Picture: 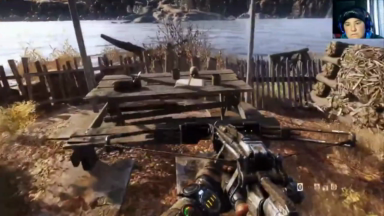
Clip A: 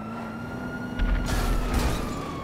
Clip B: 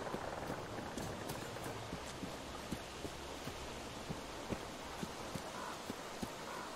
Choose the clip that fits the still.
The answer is B